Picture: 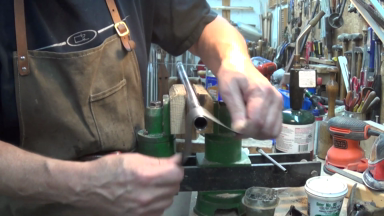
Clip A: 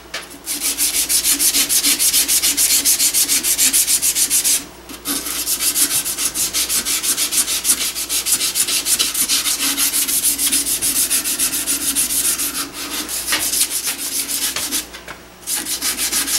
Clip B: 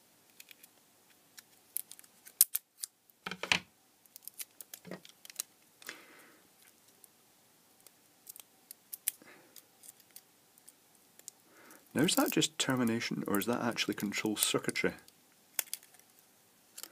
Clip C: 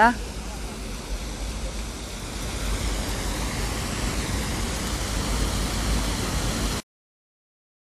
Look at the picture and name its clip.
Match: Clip A